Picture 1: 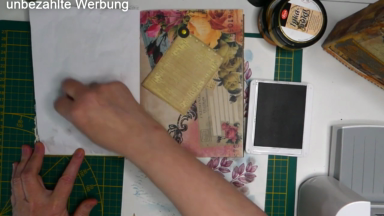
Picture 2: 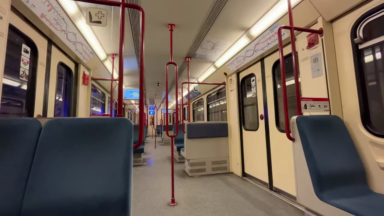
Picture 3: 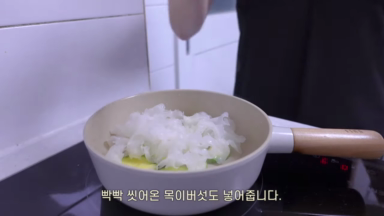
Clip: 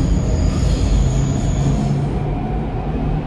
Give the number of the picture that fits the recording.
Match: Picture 2